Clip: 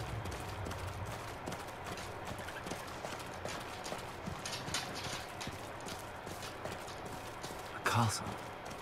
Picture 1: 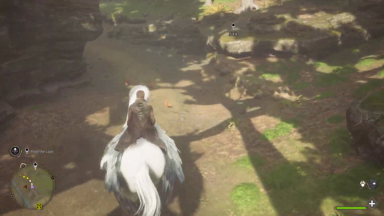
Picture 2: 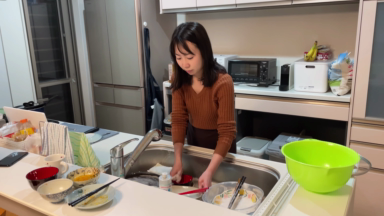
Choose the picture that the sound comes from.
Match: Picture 1